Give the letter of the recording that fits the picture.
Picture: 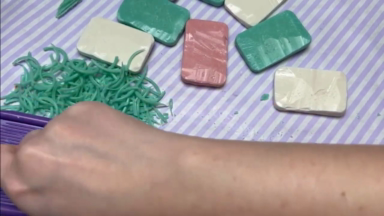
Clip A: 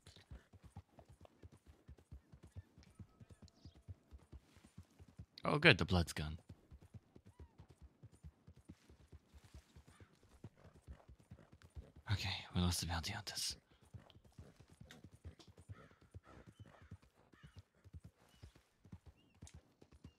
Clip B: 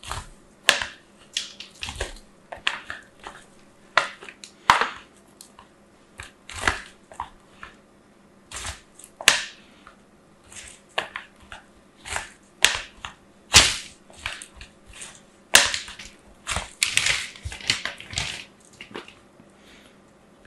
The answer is B